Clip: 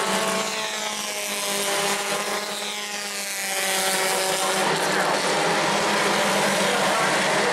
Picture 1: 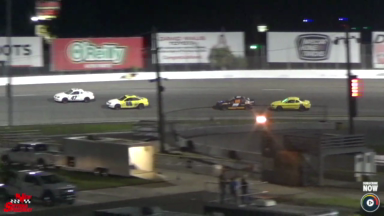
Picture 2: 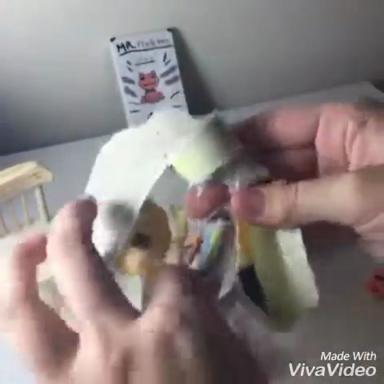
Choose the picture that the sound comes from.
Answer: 1